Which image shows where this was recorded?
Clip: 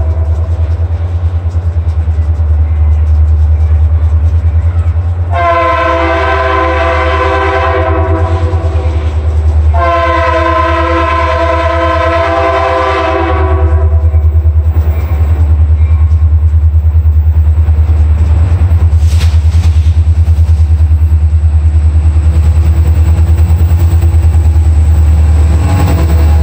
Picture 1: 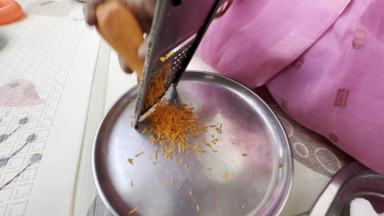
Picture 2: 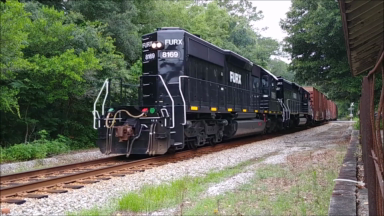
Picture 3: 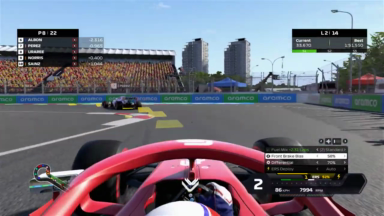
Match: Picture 2